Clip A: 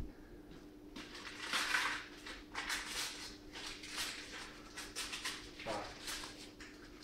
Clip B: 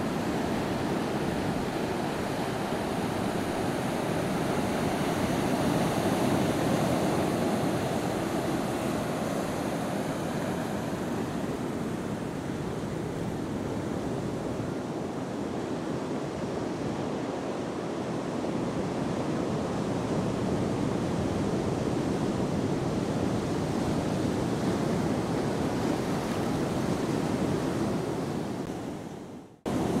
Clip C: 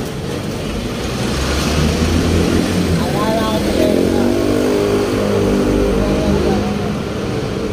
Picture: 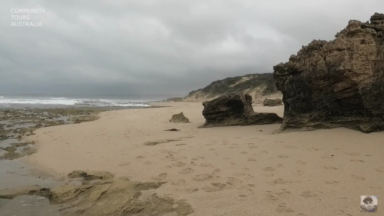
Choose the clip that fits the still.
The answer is B